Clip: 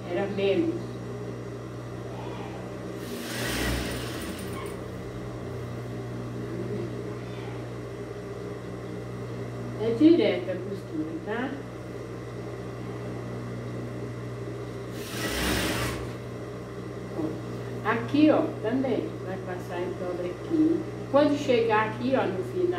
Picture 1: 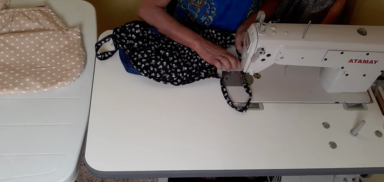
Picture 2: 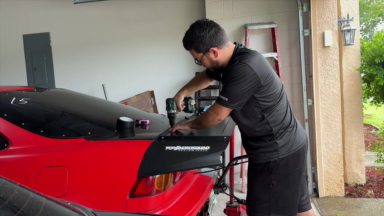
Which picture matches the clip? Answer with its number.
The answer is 1